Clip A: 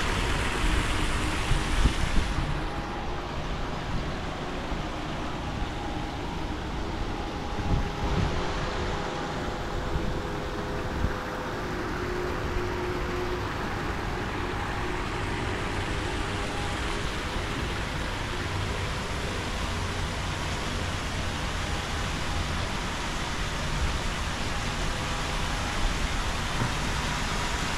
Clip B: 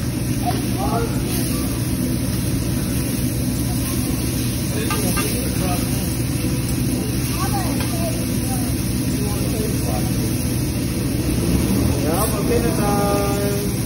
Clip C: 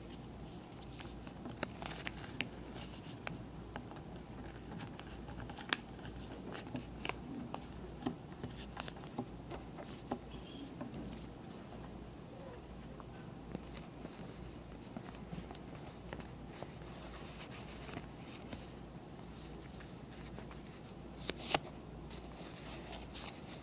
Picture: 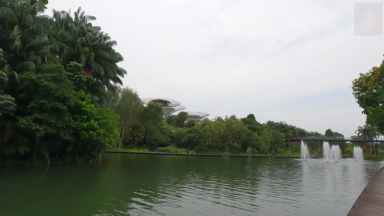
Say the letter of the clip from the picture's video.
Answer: A